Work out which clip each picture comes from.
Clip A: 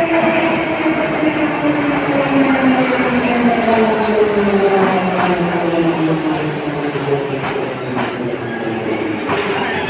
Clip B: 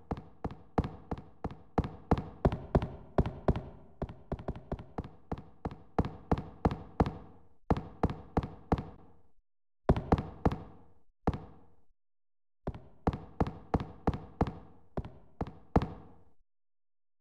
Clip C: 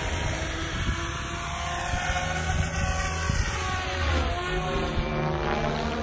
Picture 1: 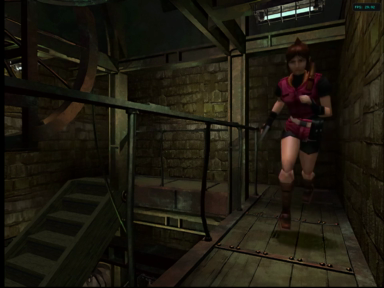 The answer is B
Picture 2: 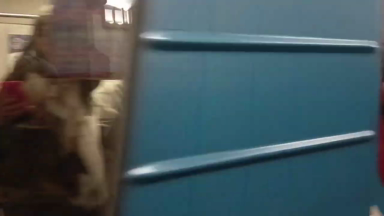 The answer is A